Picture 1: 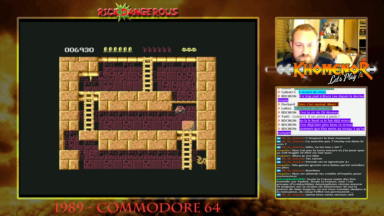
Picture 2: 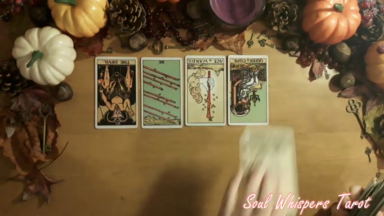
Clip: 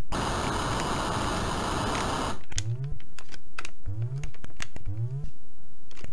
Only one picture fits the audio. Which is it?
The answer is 1